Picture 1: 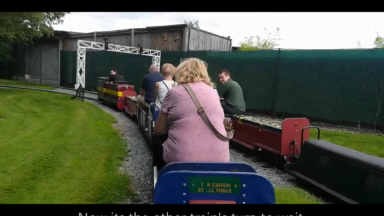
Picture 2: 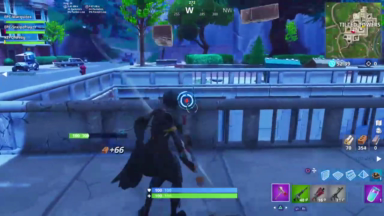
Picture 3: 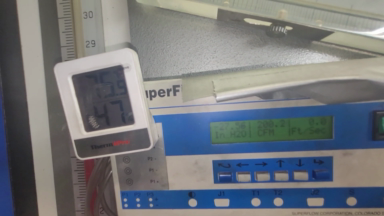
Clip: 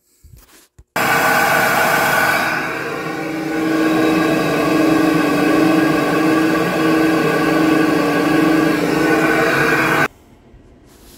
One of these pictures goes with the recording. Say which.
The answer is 3